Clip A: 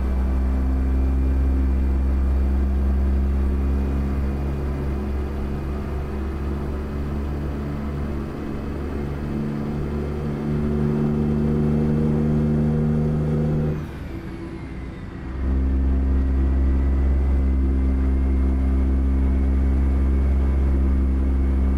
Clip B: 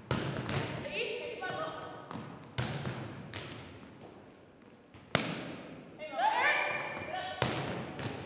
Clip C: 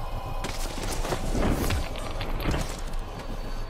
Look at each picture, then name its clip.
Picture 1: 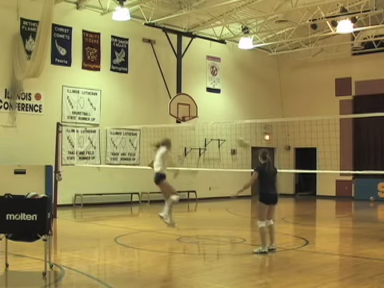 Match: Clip B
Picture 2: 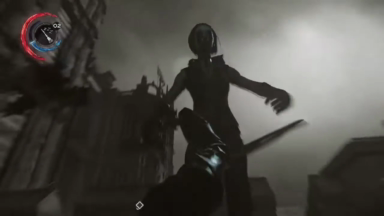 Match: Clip C